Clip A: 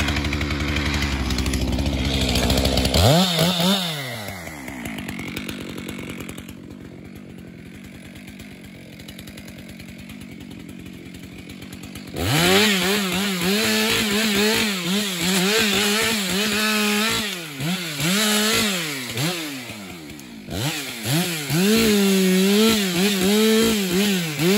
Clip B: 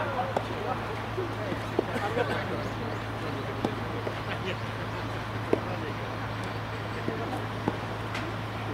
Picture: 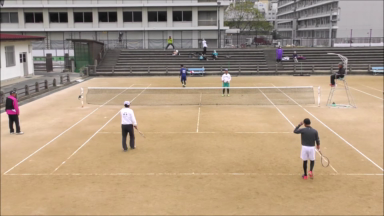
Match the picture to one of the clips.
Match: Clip B